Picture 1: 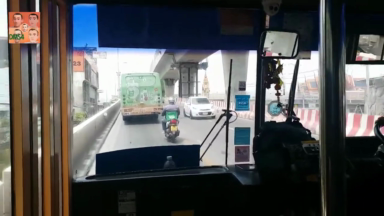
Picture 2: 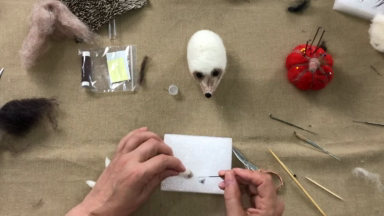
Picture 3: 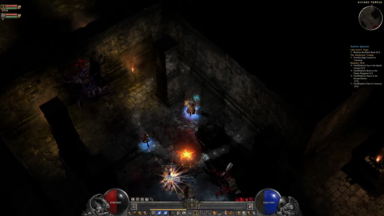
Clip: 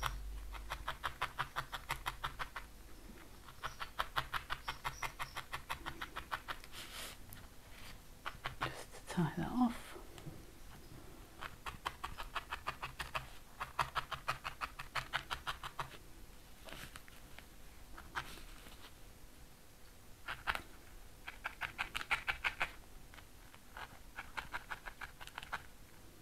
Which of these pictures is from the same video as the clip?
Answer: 2